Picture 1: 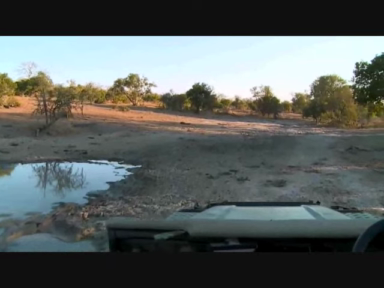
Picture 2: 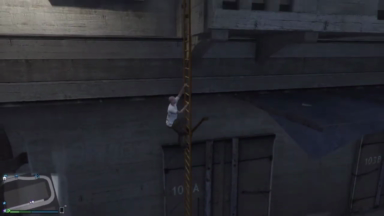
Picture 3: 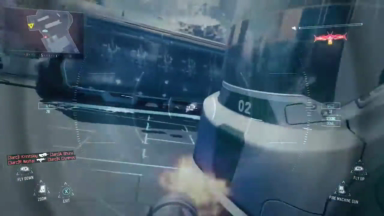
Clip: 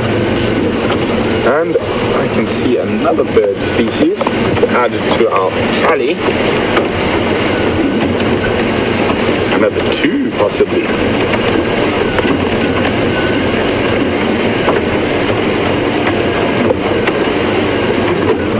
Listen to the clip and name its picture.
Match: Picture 1